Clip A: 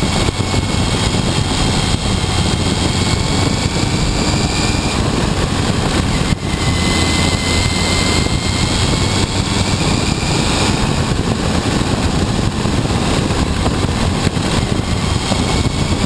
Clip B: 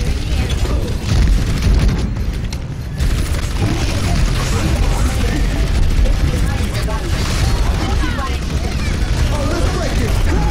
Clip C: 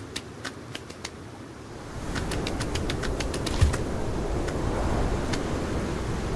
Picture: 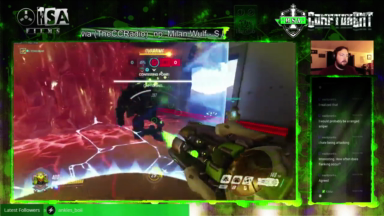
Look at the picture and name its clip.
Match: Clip B